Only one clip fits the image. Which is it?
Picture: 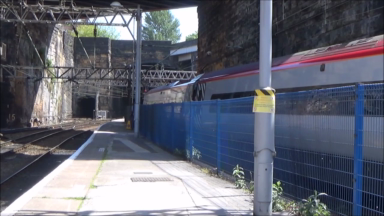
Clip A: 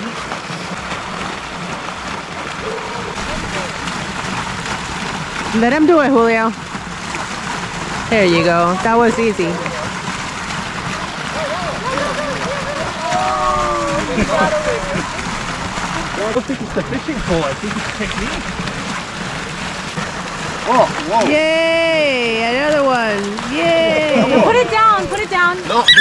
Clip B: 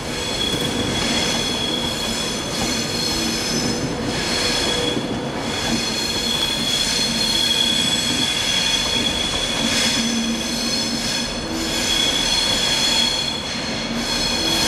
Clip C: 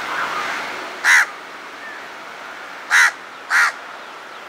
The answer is B